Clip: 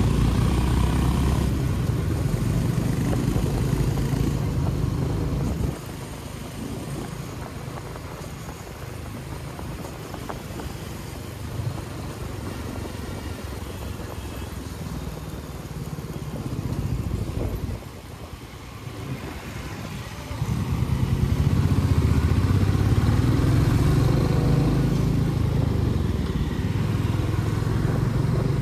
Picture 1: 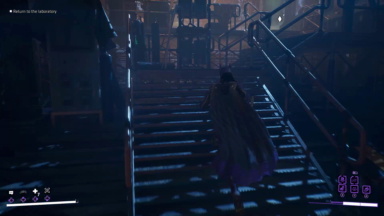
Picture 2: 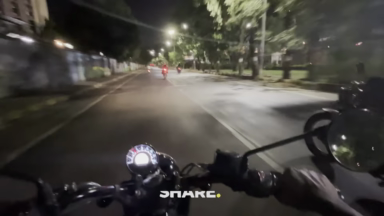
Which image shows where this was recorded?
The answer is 2